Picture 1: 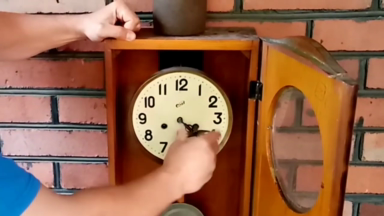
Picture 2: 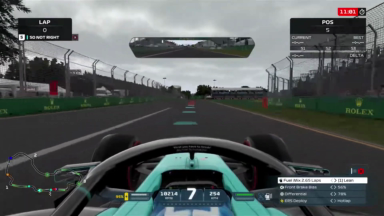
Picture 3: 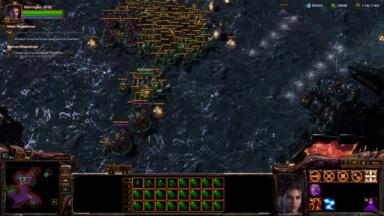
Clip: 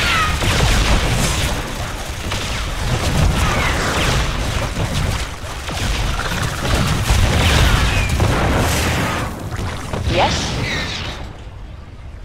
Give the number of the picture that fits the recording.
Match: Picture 3